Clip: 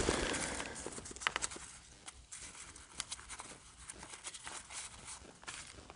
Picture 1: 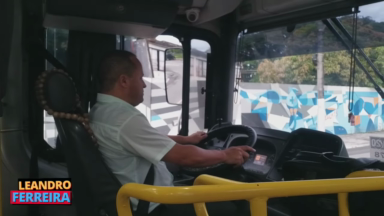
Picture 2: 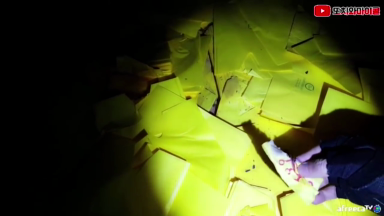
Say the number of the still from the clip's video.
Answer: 2